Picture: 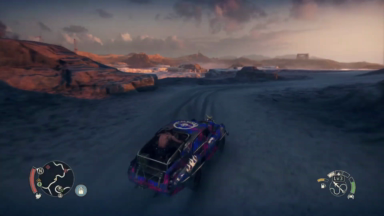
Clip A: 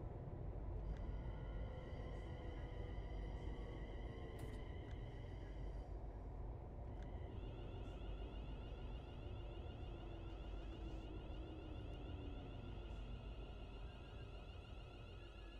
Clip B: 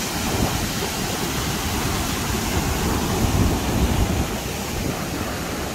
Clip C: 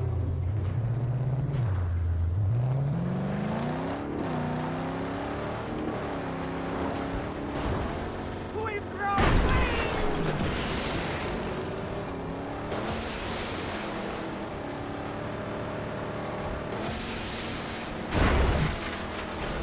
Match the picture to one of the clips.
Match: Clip C